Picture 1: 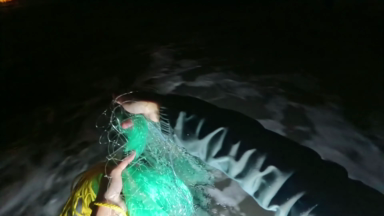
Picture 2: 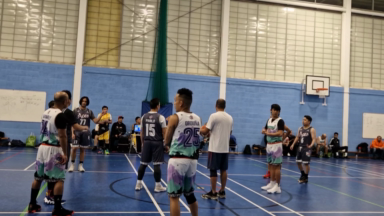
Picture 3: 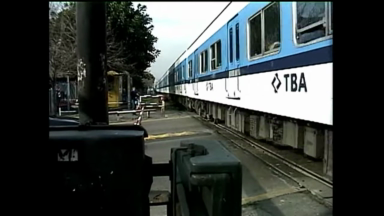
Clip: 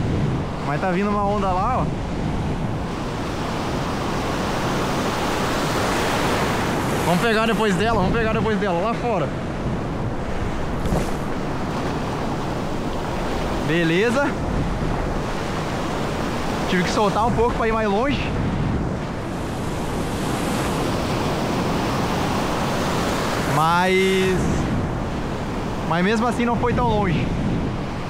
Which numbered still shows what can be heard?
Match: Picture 1